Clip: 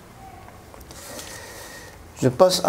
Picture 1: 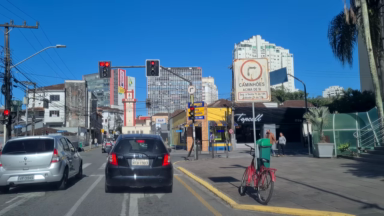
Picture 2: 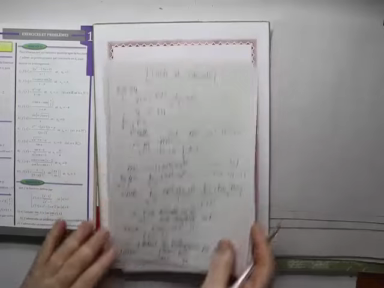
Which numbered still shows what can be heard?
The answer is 2